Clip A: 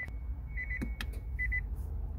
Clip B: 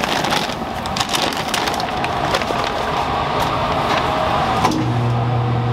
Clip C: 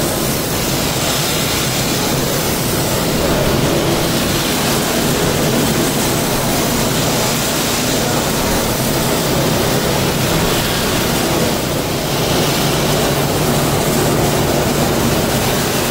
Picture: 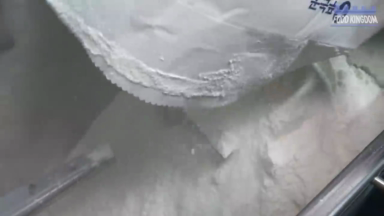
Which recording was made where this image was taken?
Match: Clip B